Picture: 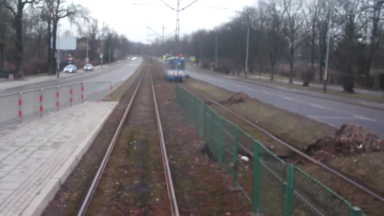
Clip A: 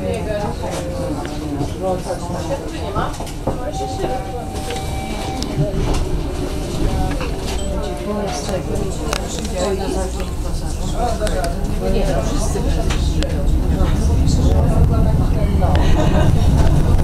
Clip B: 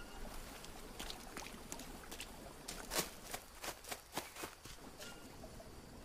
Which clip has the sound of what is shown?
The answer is A